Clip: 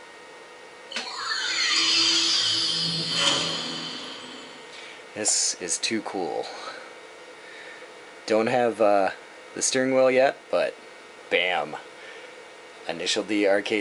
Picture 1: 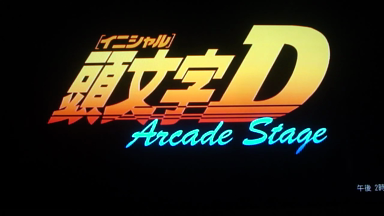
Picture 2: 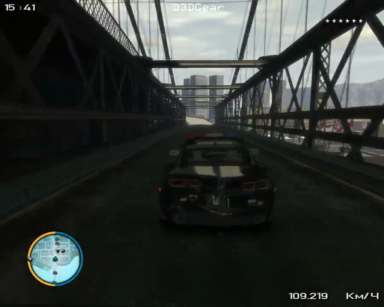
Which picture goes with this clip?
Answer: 1